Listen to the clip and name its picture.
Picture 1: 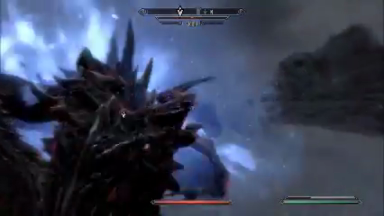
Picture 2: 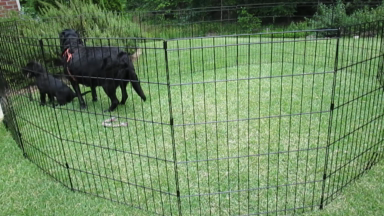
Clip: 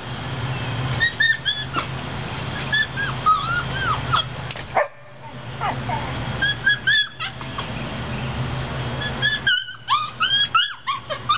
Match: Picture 2